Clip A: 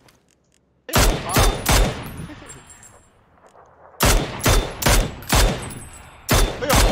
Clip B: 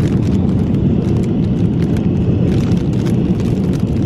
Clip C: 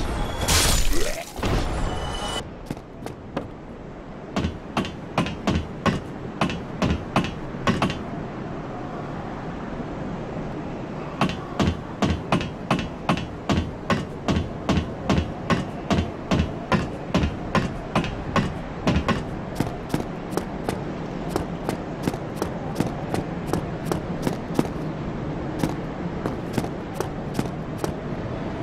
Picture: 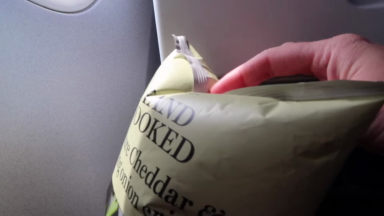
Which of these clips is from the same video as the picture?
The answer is B